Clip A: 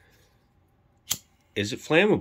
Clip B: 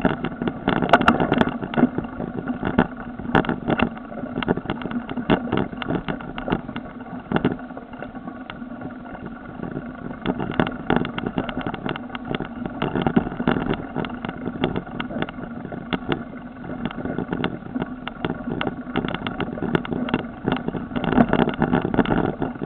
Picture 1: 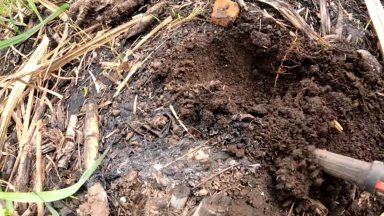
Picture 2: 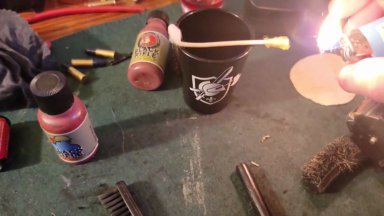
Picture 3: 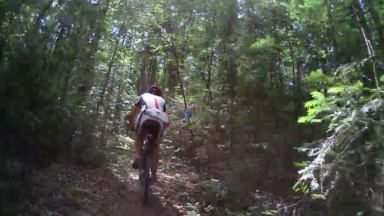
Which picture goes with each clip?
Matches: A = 2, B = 3